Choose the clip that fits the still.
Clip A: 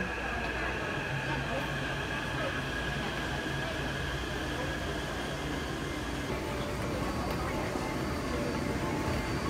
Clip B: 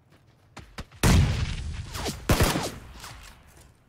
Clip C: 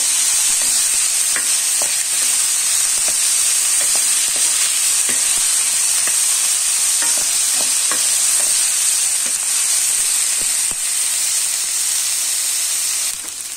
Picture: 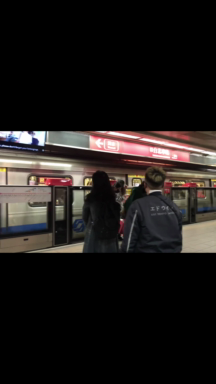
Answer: A